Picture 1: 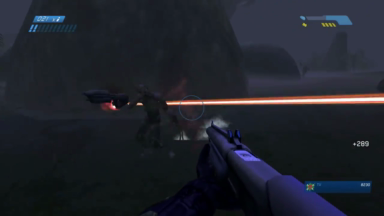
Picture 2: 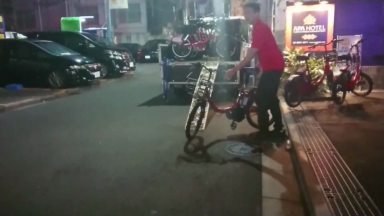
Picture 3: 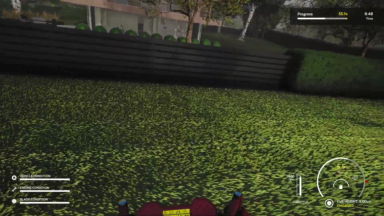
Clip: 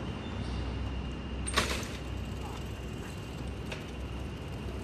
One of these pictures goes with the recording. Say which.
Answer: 2